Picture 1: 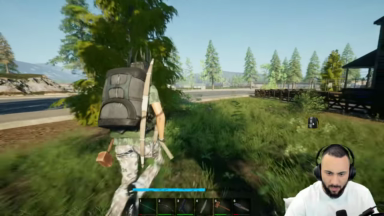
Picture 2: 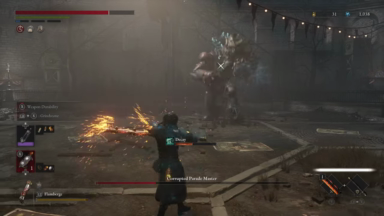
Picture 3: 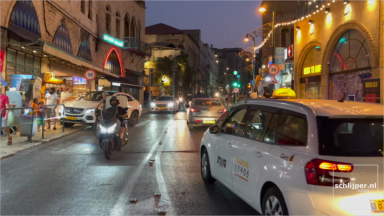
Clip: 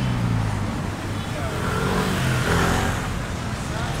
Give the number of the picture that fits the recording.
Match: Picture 3